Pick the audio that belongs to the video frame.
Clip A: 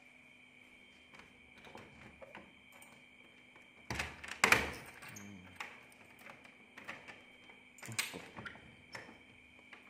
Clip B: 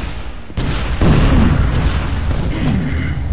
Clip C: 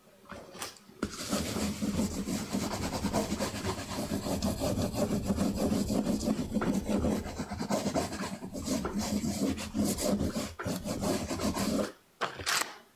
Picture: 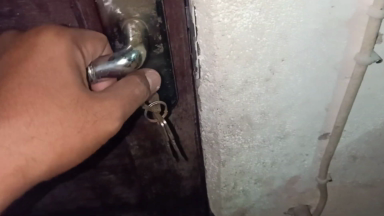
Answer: A